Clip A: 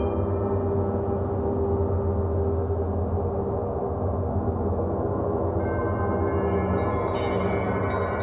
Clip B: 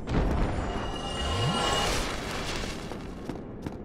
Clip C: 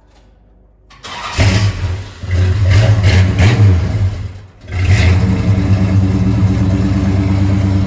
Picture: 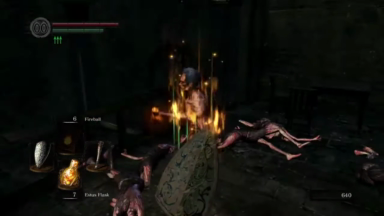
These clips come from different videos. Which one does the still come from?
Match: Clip B